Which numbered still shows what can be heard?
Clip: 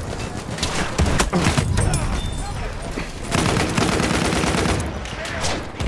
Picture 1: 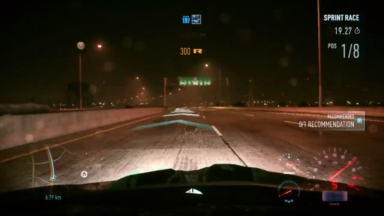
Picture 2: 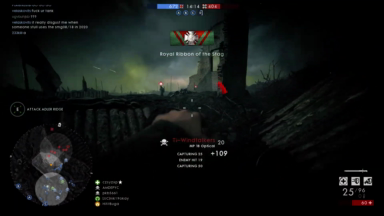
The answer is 2